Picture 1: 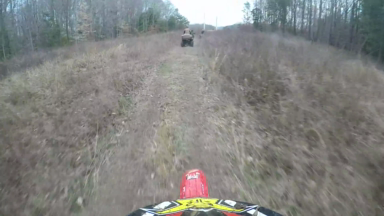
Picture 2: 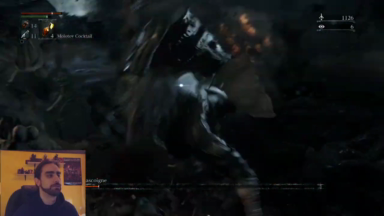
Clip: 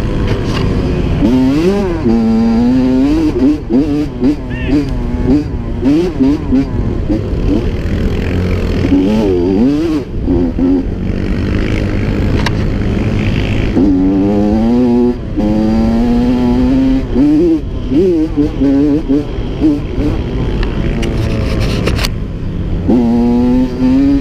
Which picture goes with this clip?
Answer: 1